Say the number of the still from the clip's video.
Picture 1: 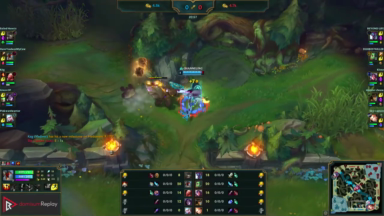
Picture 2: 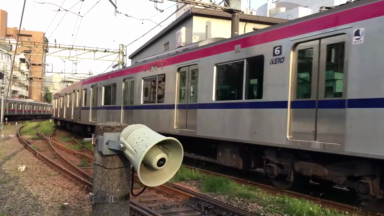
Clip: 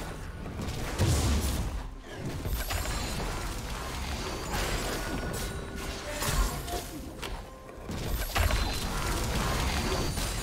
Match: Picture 1